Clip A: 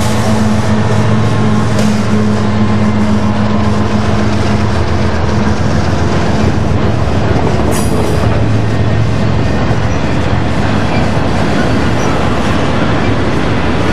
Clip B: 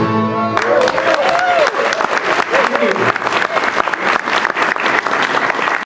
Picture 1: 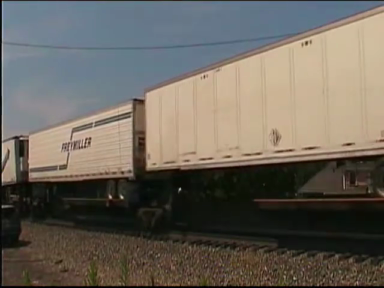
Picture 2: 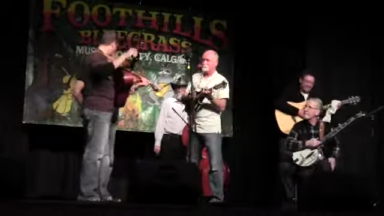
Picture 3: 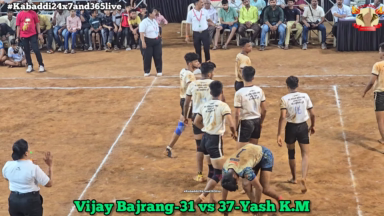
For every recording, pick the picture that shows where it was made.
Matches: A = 1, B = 2